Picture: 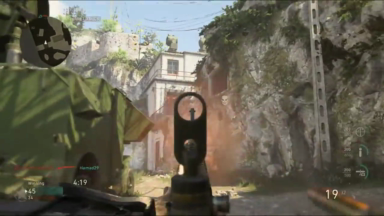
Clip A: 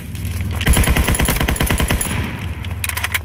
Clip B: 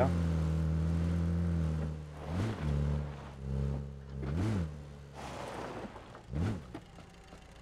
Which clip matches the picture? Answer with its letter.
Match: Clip A